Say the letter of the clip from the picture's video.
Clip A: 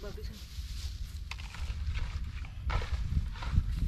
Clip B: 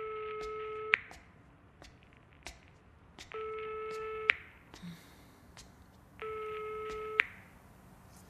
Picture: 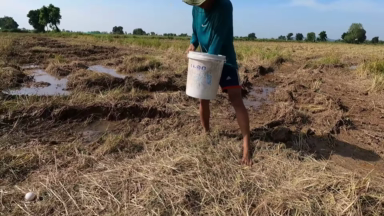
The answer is A